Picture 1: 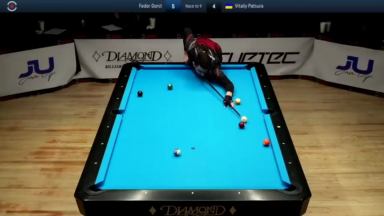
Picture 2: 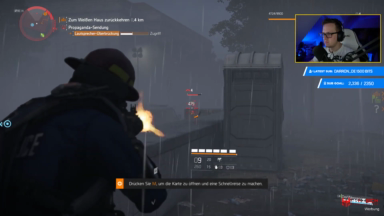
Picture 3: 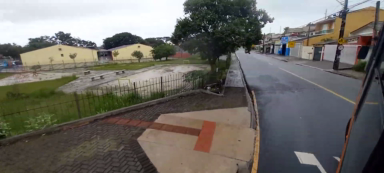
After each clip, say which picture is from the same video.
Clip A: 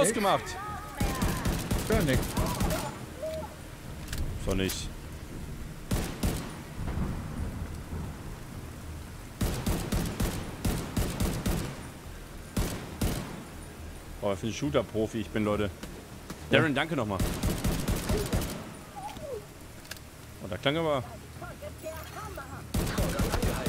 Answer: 2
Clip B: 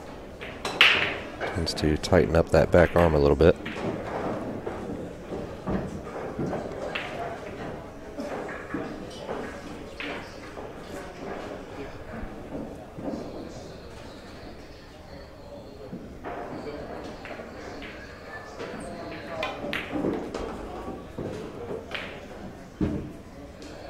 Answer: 1